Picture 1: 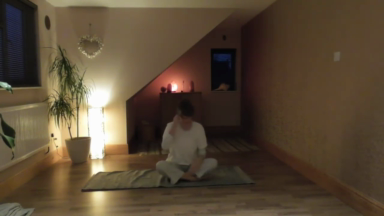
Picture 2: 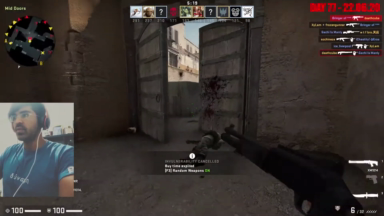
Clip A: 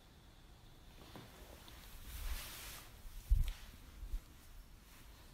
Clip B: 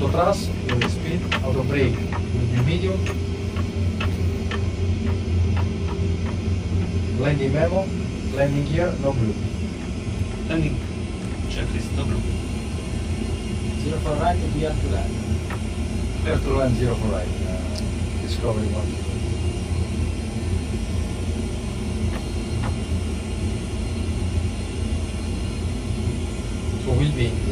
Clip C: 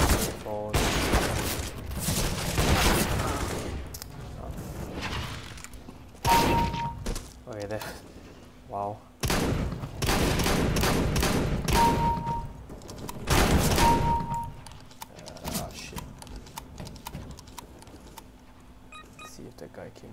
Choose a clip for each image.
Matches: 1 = A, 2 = C